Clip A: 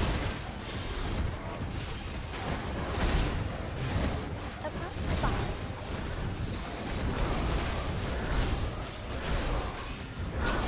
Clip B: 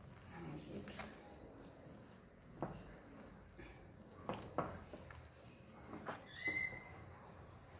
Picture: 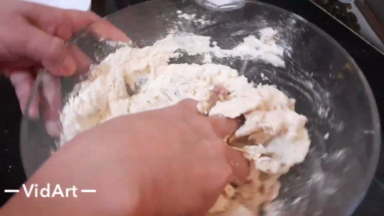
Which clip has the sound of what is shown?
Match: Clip B